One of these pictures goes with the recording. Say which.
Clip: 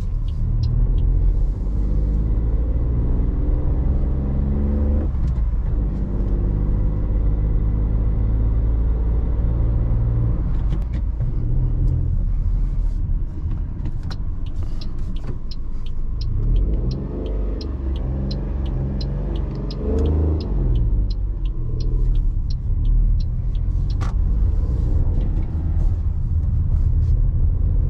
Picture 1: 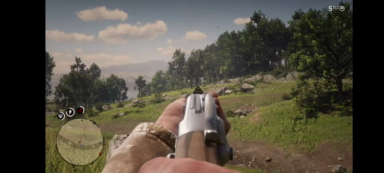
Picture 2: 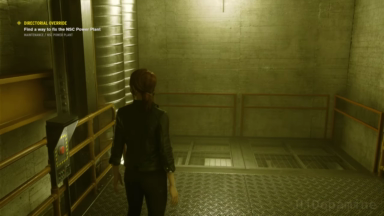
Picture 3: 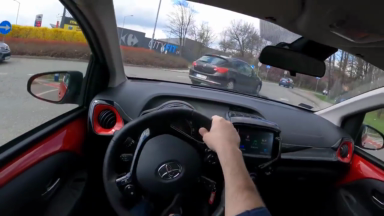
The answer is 3